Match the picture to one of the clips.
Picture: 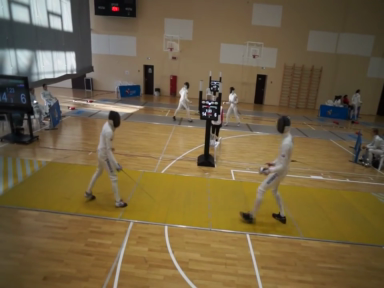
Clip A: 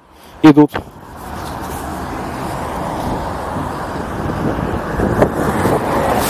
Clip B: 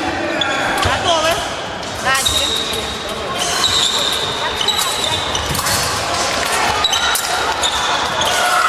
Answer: B